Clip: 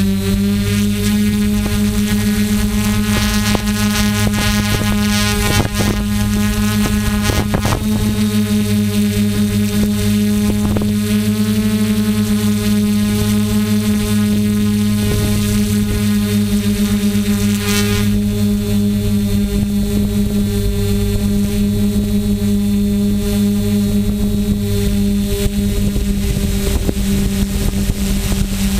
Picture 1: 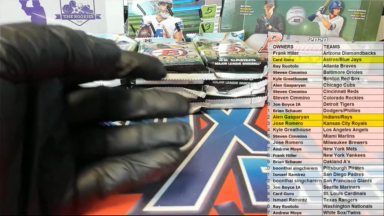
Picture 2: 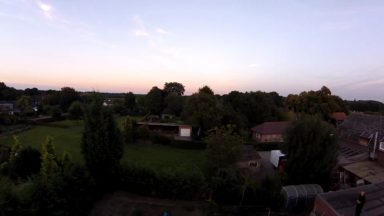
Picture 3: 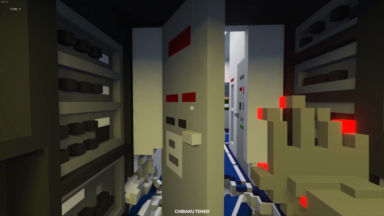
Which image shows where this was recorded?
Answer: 2